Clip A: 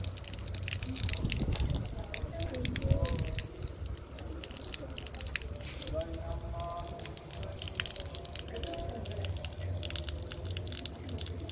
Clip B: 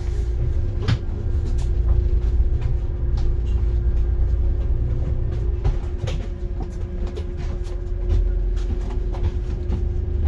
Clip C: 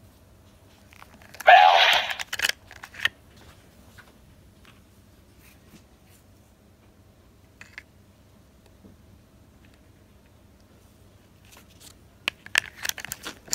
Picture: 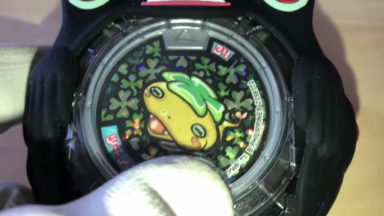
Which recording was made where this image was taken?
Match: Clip C